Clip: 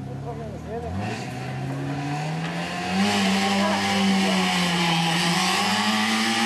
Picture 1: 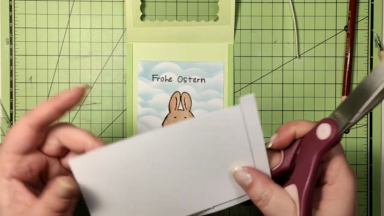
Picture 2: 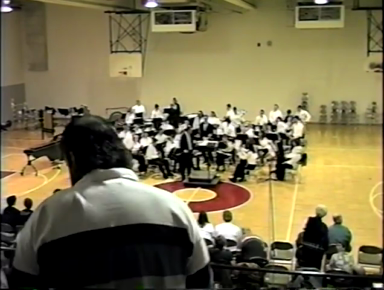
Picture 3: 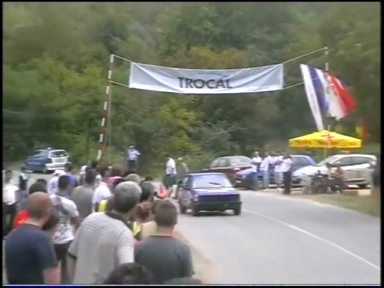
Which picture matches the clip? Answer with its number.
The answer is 3